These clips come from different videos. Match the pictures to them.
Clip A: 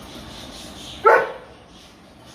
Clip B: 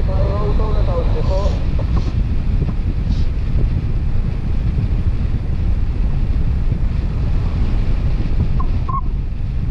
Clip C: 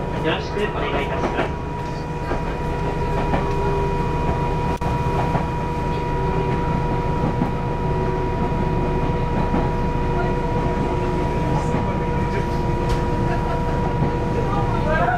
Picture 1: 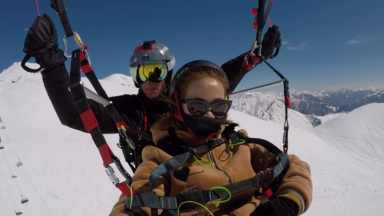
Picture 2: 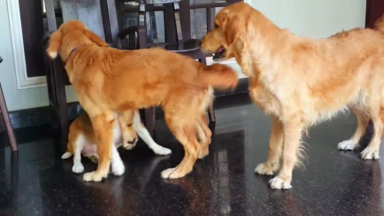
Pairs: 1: B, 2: A